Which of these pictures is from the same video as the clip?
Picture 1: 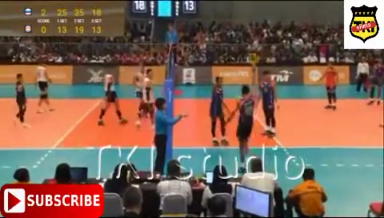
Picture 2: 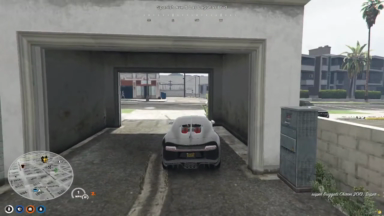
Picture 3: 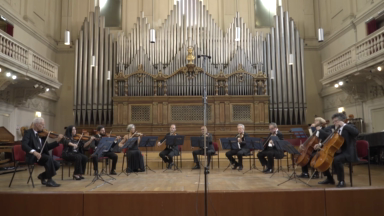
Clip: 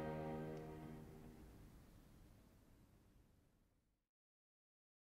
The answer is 3